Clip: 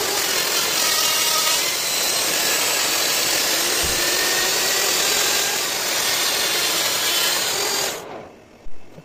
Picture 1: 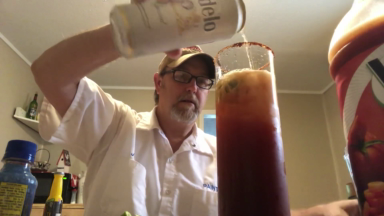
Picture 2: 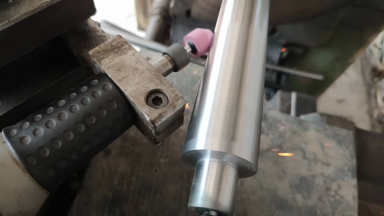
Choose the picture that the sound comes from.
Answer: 2